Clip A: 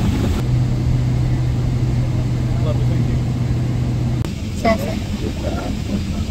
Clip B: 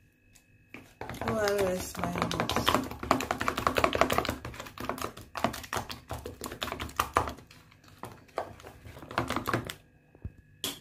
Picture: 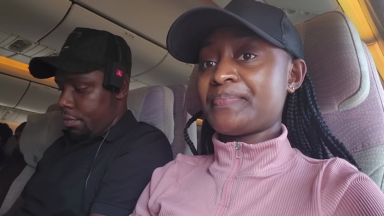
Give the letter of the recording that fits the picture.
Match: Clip A